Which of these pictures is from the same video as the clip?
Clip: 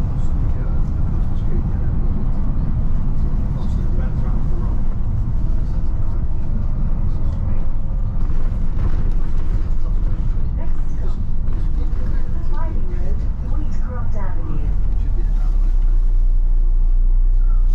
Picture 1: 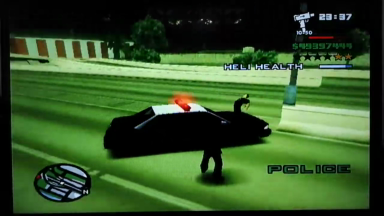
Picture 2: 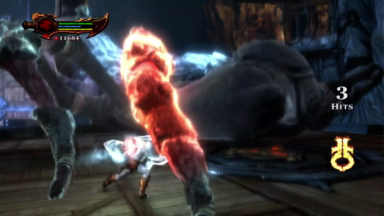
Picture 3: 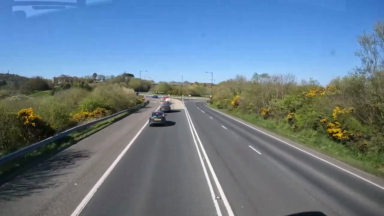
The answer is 3